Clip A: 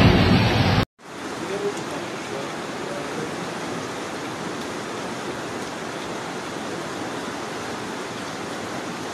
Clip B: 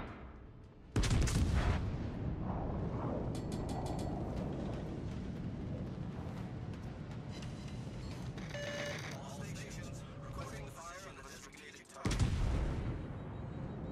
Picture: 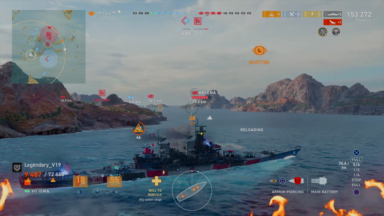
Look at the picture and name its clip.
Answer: B